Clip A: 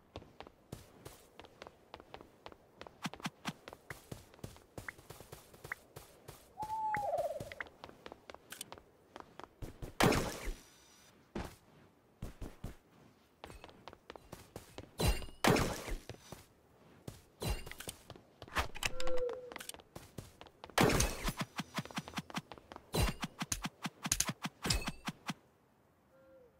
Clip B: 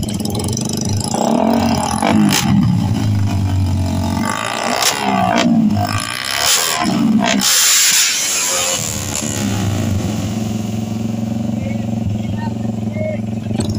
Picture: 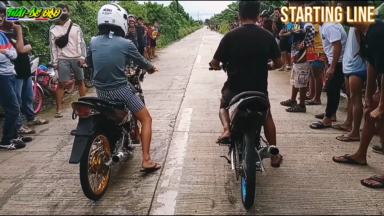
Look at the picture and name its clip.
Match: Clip B